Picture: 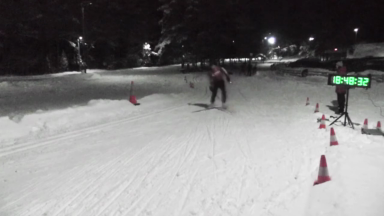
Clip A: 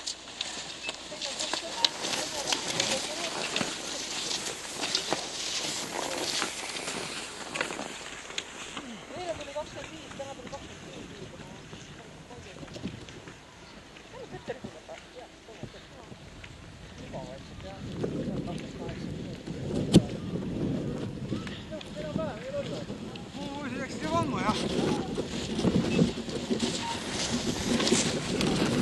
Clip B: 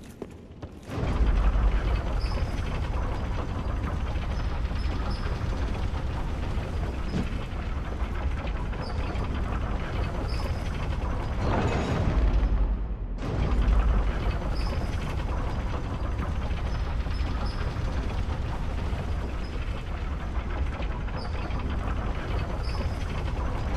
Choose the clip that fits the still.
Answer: A